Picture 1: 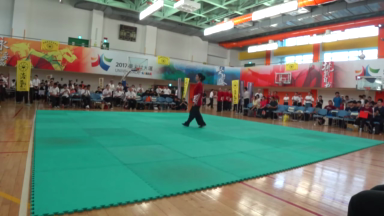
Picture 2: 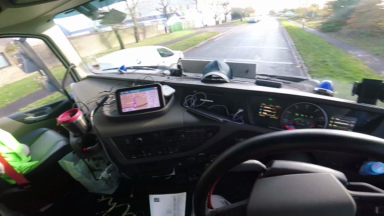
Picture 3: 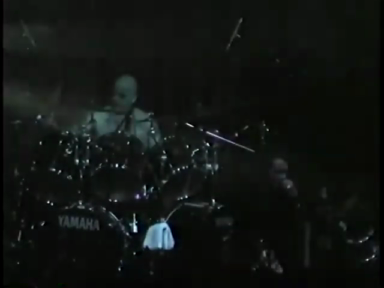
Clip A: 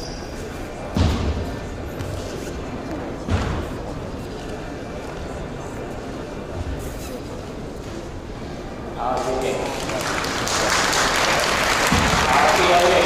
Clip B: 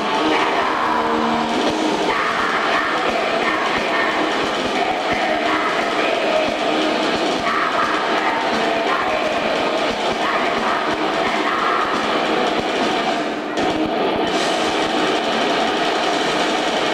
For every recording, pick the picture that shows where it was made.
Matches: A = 1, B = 3